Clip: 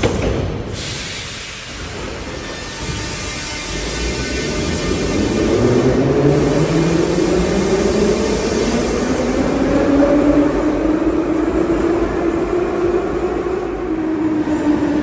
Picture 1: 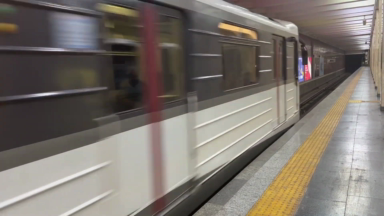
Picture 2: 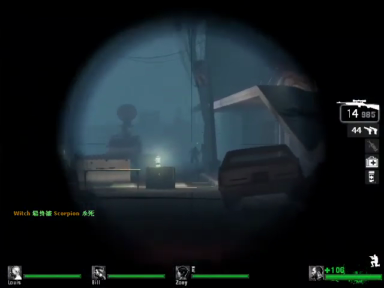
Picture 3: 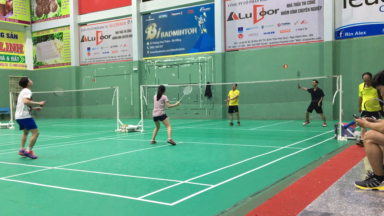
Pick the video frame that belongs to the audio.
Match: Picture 1